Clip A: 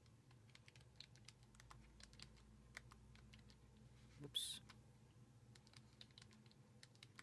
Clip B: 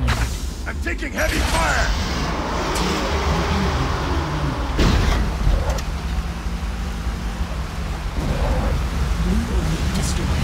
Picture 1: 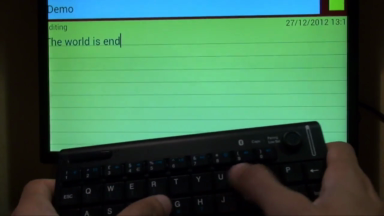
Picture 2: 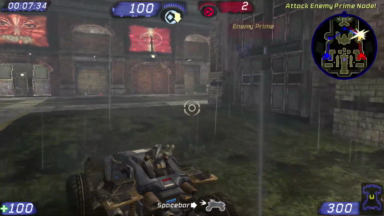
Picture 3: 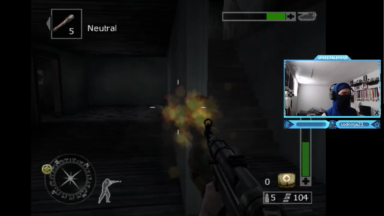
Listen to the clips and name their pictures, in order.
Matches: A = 1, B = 2